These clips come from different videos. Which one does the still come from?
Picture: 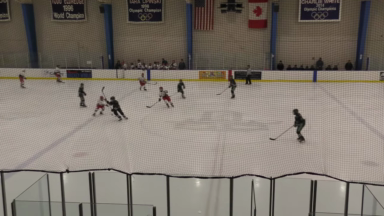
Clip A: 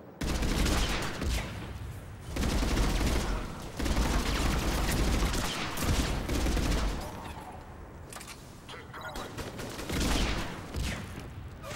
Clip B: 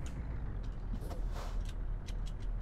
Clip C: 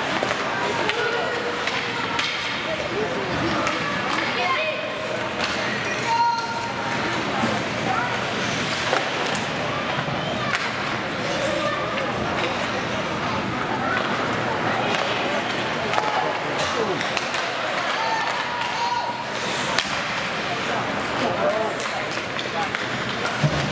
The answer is C